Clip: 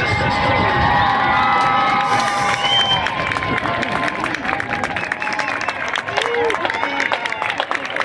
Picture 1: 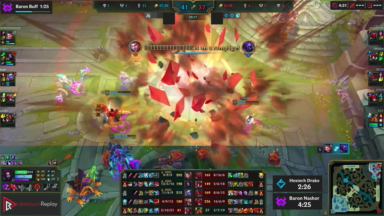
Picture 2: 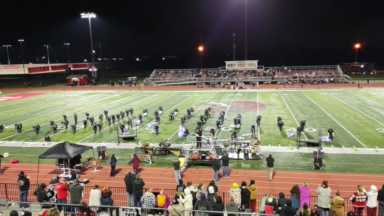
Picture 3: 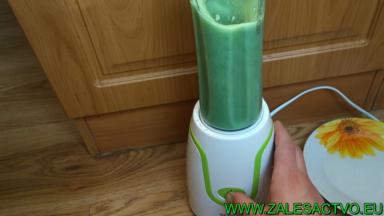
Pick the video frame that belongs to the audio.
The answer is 2